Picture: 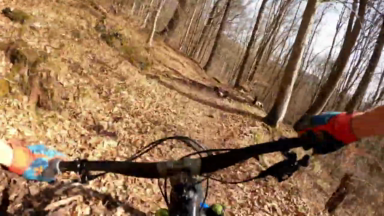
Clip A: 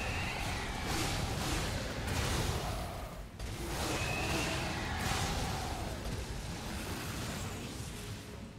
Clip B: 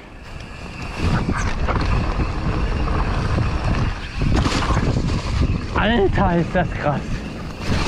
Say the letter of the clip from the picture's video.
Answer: B